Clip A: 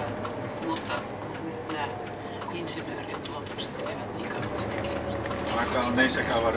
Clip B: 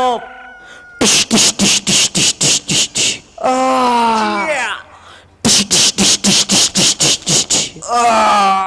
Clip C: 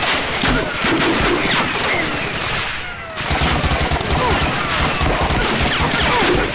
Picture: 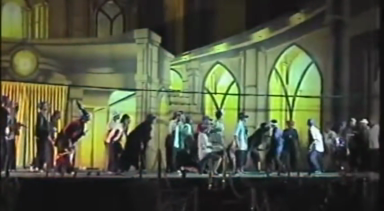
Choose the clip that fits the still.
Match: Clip B